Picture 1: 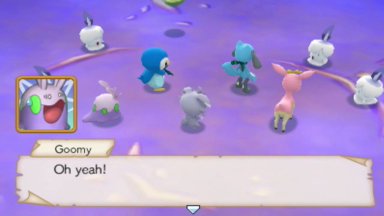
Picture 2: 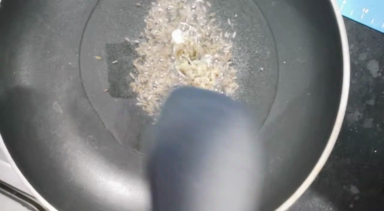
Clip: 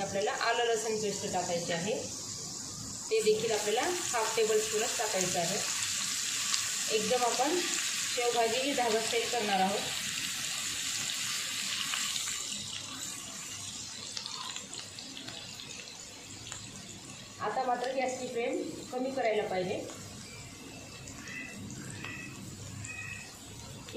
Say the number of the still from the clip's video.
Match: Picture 2